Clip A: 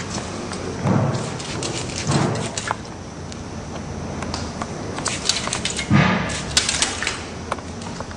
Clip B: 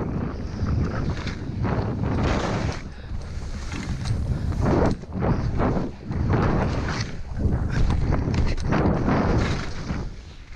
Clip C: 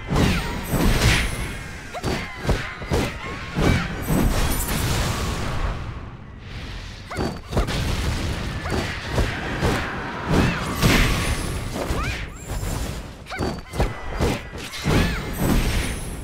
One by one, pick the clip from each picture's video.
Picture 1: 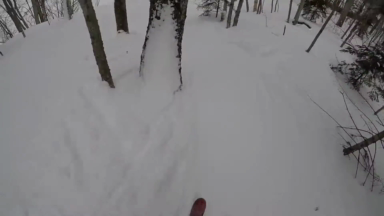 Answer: B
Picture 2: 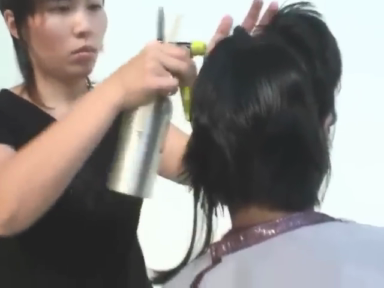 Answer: A